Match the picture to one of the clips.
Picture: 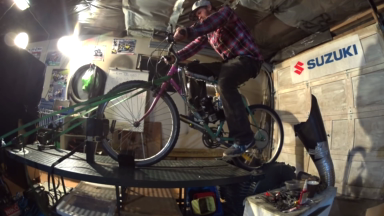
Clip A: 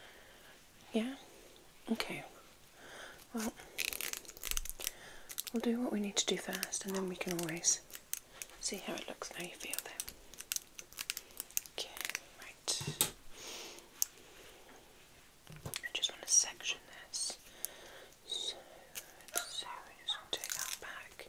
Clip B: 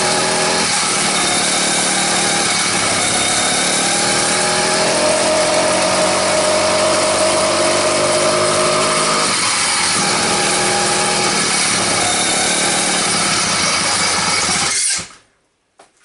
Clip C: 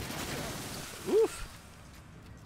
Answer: B